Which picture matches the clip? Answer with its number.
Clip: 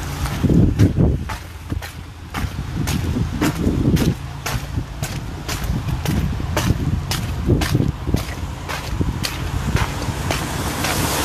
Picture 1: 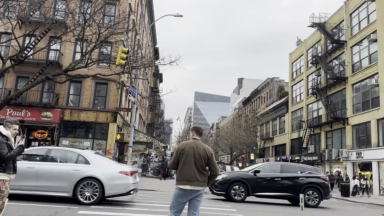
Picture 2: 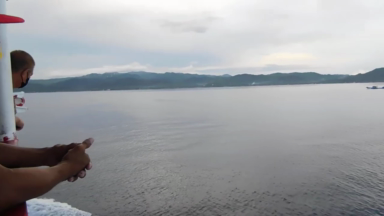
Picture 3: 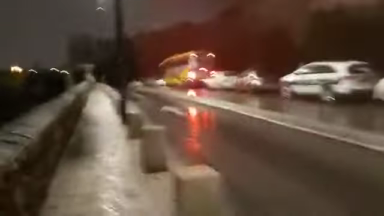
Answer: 3